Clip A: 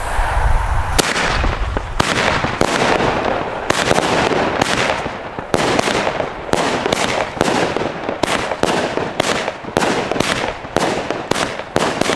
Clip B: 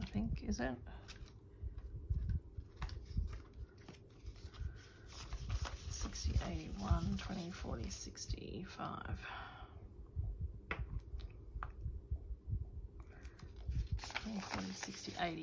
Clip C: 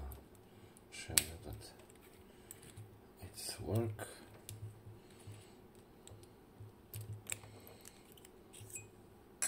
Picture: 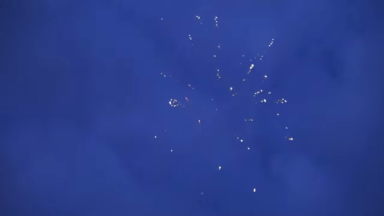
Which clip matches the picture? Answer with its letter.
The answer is A